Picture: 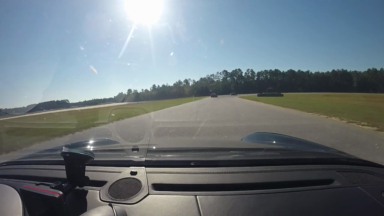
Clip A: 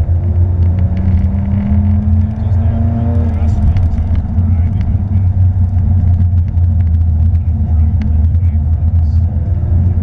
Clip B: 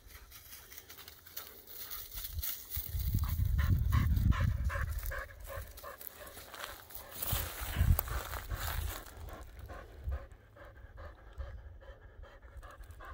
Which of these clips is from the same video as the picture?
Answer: A